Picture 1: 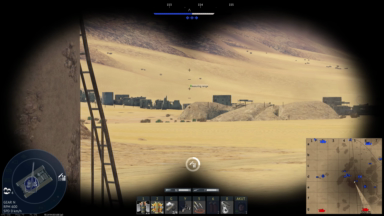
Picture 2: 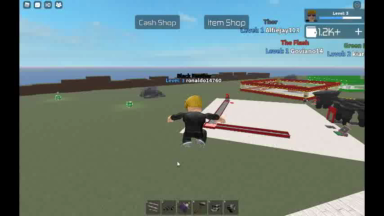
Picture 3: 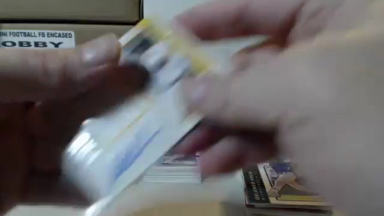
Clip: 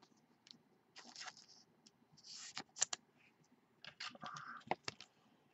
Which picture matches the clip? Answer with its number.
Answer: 3